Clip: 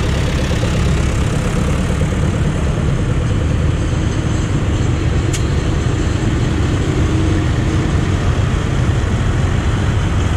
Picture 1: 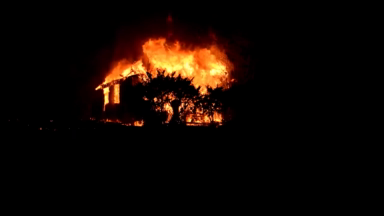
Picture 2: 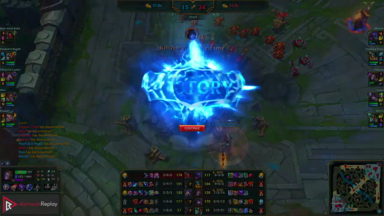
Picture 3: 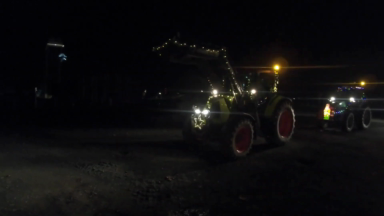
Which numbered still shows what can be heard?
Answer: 3